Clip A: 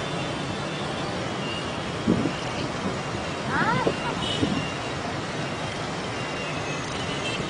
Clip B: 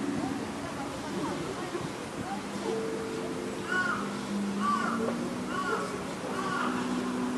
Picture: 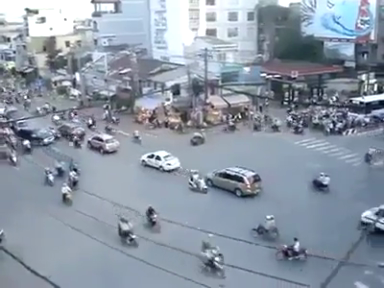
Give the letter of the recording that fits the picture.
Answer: A